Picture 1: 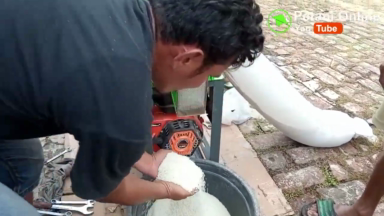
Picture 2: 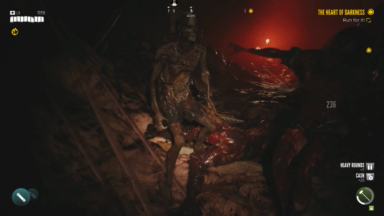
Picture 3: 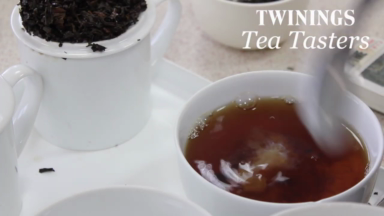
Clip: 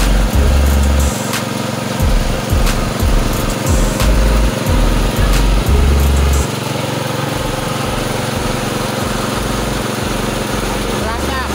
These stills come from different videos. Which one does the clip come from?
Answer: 1